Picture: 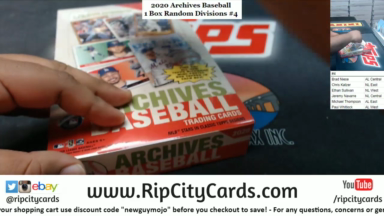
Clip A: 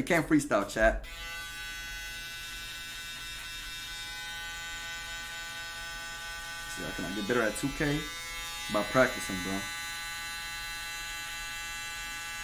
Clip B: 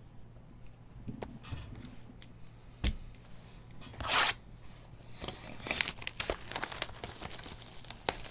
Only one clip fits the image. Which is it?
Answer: B